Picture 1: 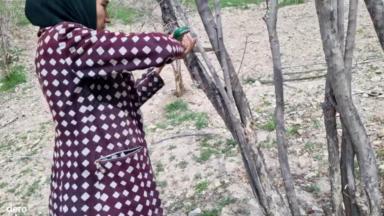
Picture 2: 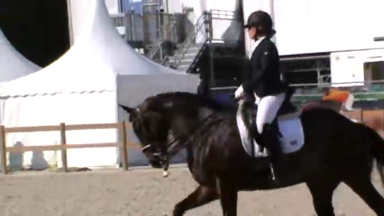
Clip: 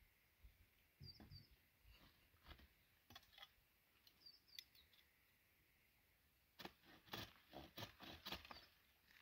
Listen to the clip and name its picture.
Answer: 1